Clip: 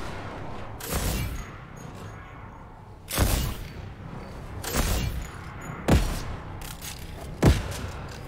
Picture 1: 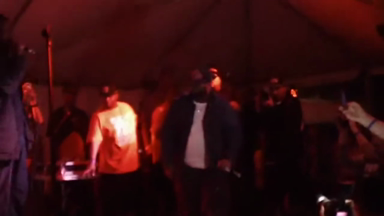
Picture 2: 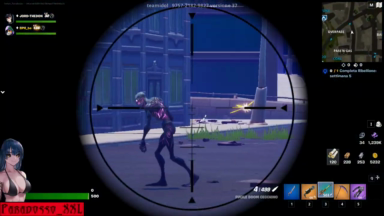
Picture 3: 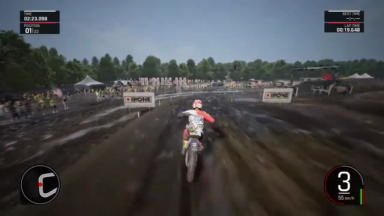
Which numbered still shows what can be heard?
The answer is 2